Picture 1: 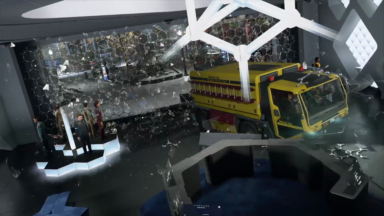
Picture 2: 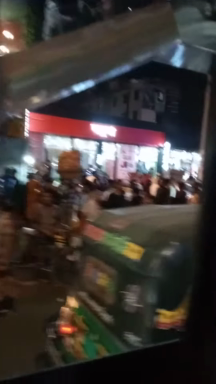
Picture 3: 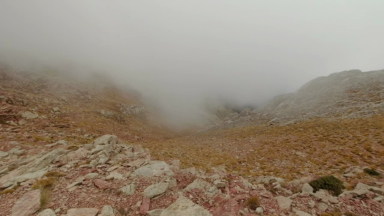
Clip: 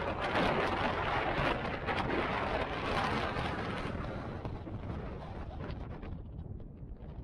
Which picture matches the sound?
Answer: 3